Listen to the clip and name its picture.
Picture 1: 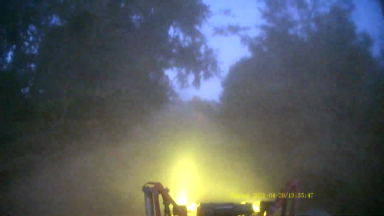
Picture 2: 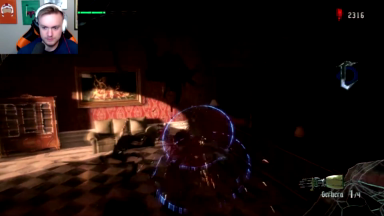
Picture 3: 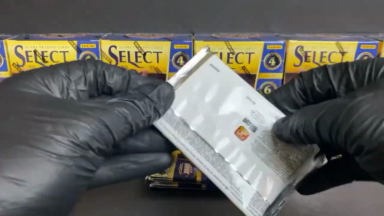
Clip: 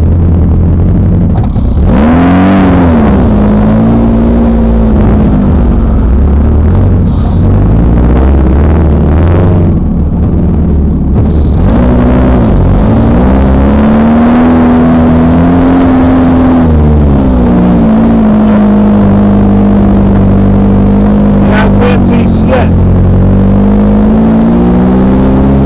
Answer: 1